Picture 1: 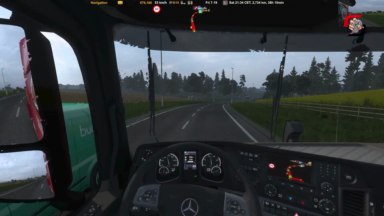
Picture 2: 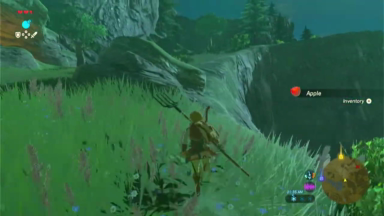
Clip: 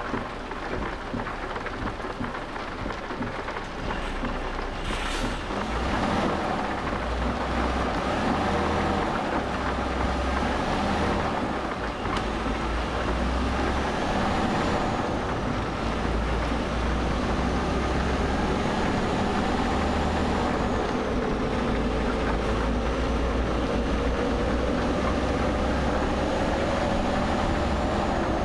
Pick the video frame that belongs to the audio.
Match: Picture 1